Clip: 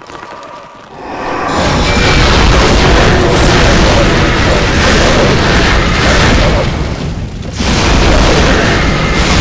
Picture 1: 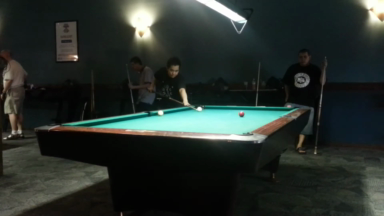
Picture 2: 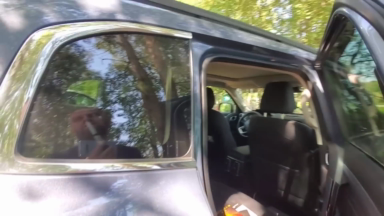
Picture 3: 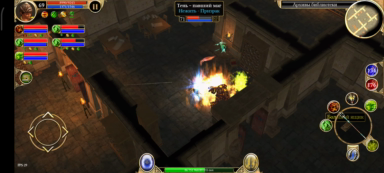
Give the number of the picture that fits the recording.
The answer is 3